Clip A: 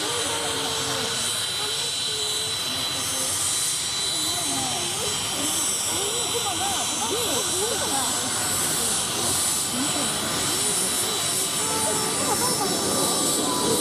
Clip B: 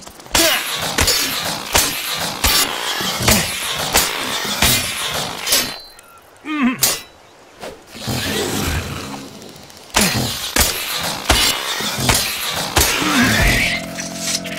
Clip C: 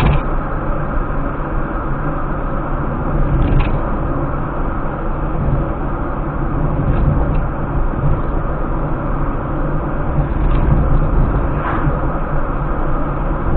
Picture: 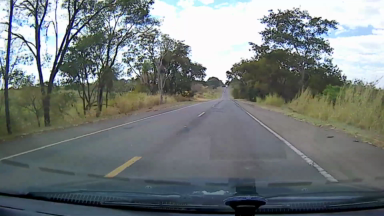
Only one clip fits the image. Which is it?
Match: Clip C